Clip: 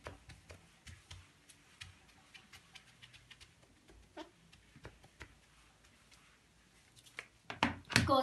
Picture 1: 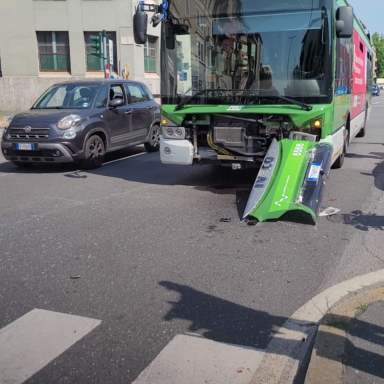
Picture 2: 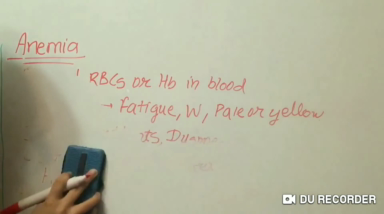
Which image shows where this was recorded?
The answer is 2